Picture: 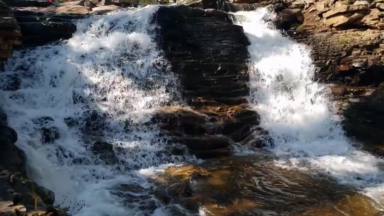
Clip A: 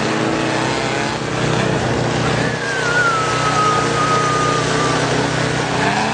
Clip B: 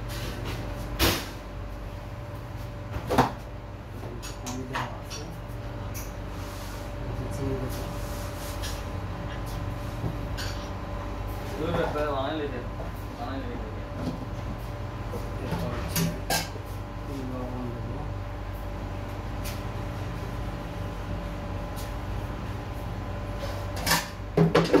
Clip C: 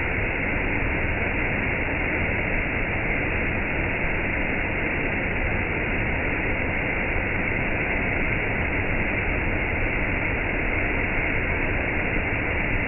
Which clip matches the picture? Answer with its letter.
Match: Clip C